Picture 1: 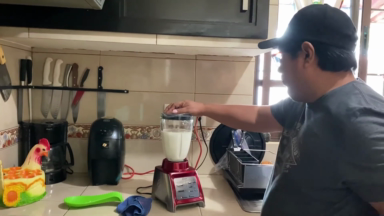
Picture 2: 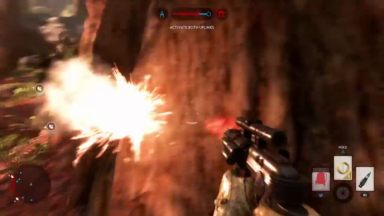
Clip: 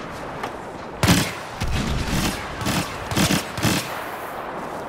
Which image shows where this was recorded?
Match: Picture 2